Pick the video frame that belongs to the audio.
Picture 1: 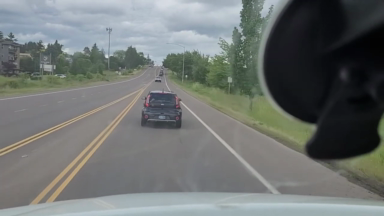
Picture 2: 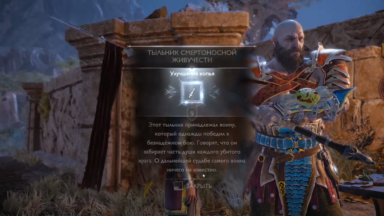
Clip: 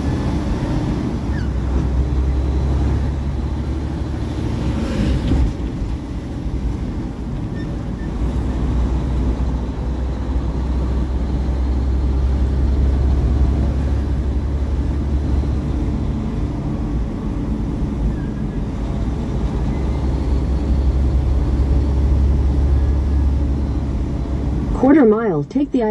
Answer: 1